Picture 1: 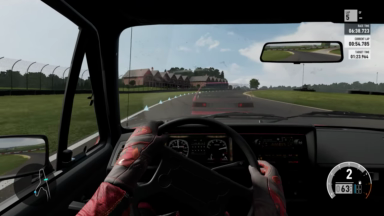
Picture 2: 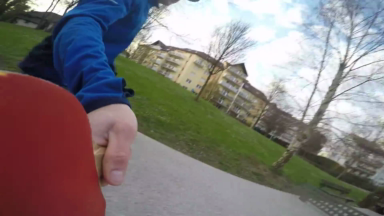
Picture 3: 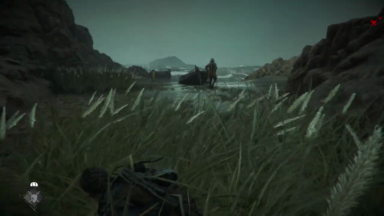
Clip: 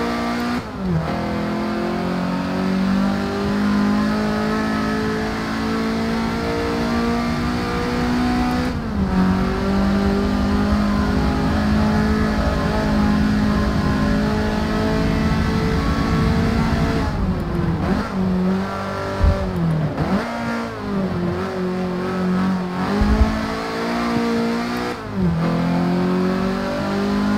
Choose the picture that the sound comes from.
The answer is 1